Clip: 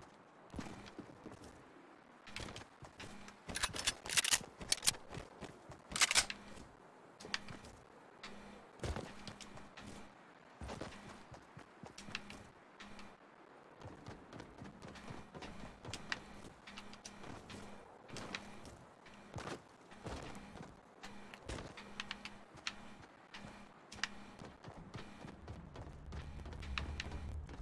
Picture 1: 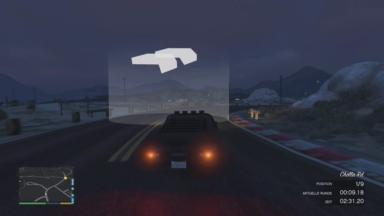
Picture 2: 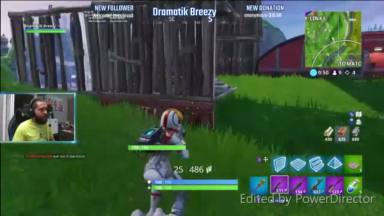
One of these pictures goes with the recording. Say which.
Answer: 2